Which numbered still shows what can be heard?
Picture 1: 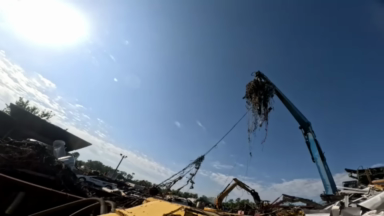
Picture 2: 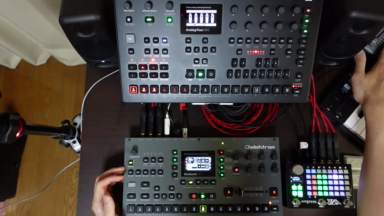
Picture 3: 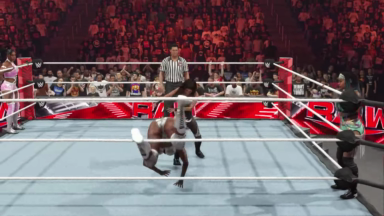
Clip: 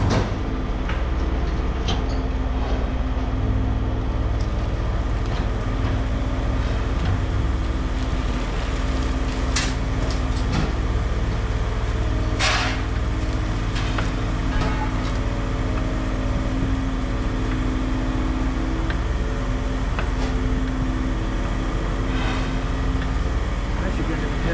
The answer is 1